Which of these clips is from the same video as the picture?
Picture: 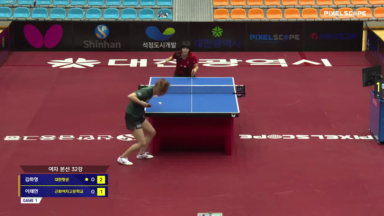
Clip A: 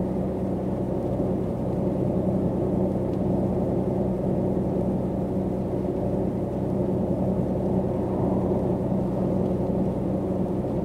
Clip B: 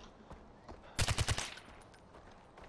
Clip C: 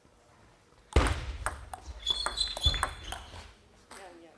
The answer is C